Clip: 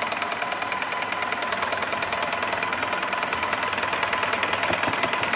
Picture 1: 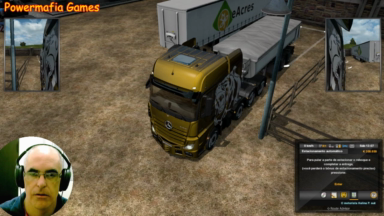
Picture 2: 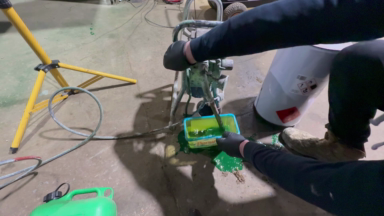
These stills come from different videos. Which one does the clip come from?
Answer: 2